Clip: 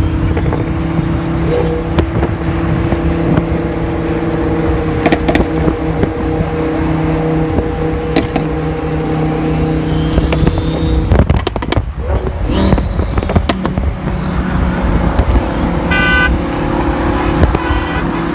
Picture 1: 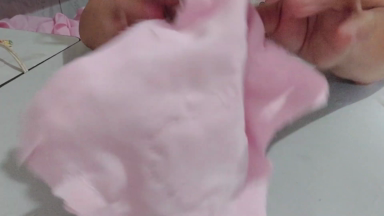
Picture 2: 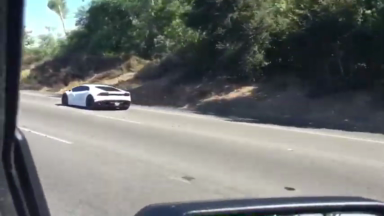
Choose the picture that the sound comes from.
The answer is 2